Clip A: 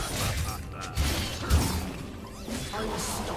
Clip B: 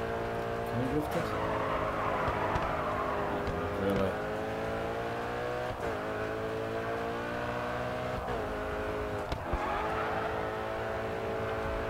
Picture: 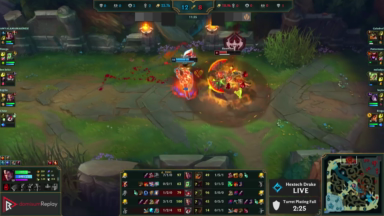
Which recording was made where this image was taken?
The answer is A